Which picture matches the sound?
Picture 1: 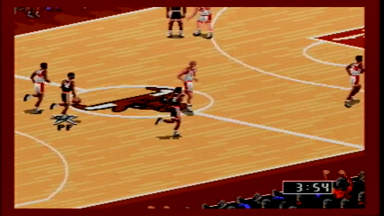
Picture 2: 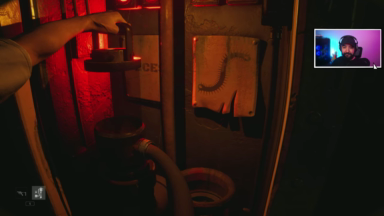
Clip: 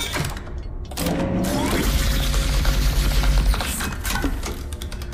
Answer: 2